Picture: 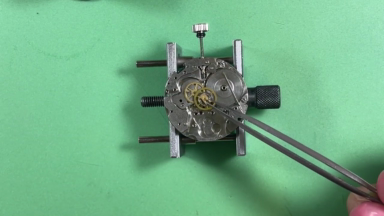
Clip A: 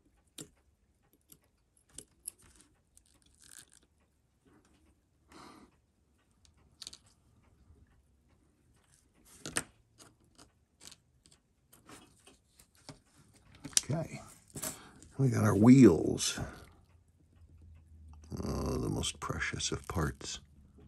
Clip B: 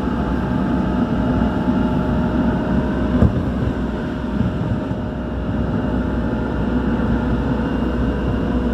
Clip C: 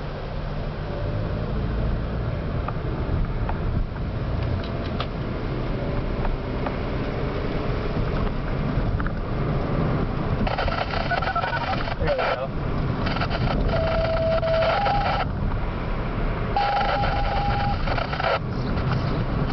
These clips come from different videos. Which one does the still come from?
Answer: A